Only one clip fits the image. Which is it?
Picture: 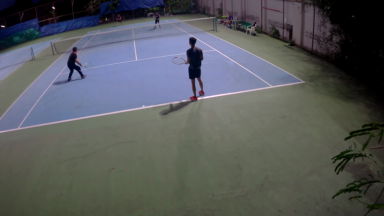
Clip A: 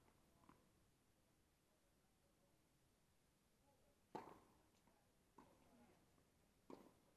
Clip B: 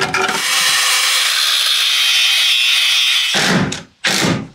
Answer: A